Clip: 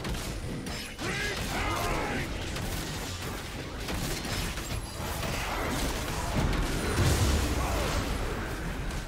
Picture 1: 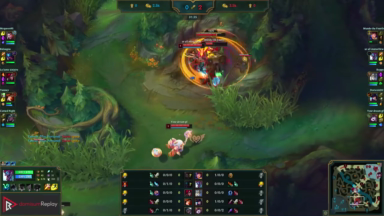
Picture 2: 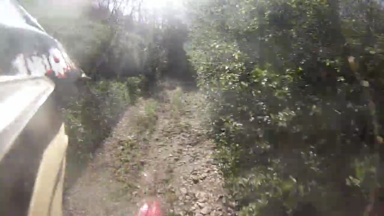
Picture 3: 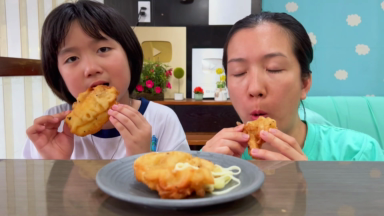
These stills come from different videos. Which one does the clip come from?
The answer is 1